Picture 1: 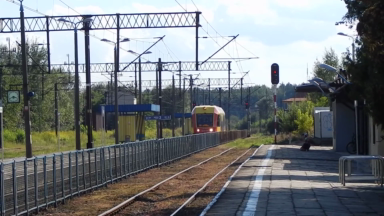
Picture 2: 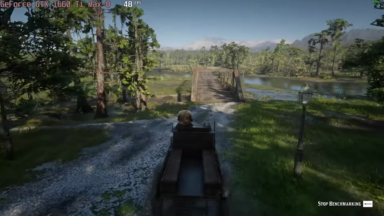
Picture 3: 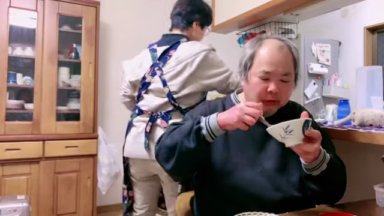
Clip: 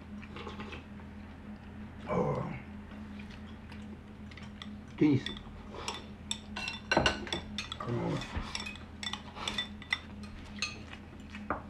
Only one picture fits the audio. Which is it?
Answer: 3